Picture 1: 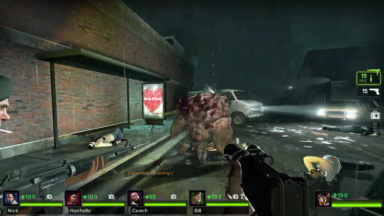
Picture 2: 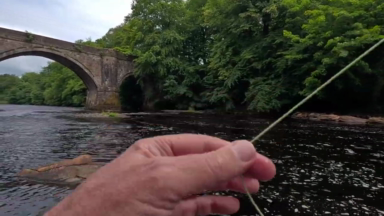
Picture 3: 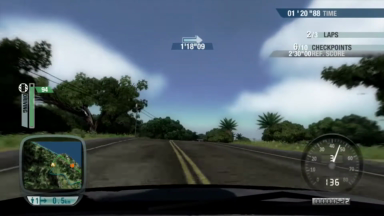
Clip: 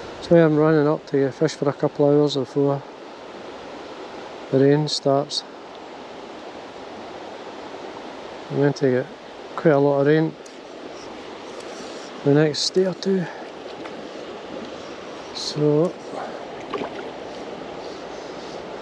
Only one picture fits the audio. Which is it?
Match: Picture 2